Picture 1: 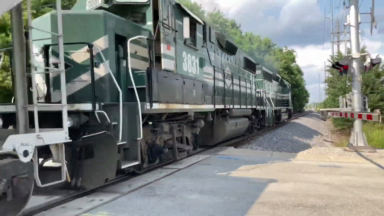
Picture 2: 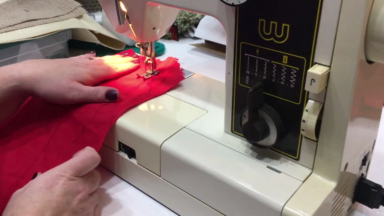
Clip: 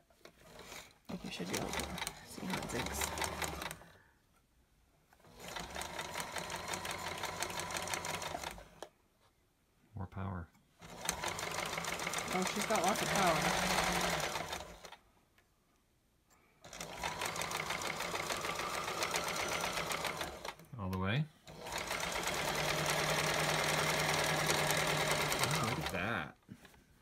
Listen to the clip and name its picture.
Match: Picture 2